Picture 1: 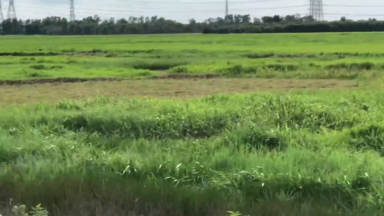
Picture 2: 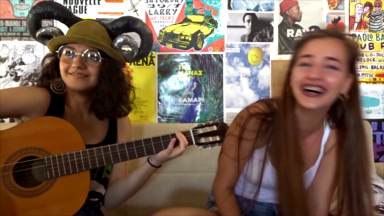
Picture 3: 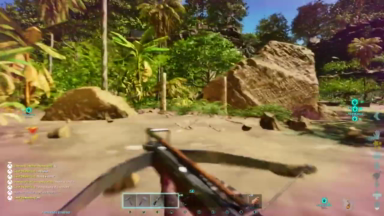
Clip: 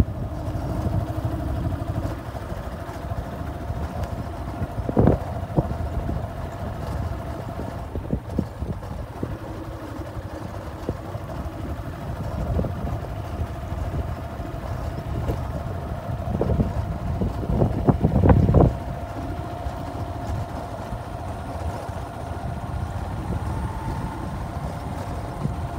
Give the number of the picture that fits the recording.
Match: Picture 1